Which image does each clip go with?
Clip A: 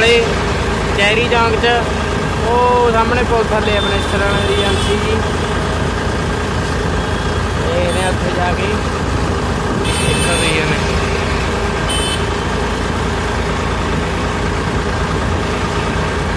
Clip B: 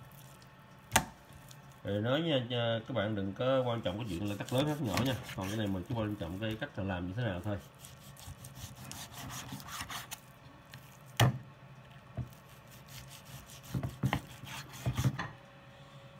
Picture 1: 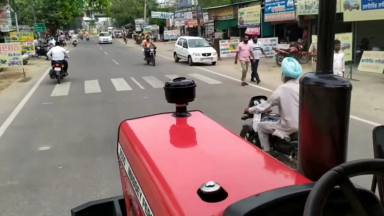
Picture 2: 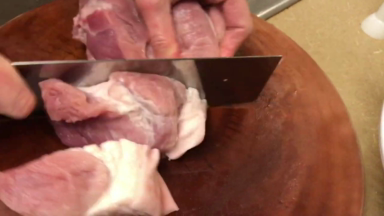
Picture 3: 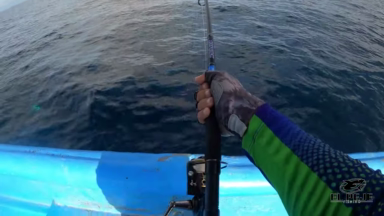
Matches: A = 1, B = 2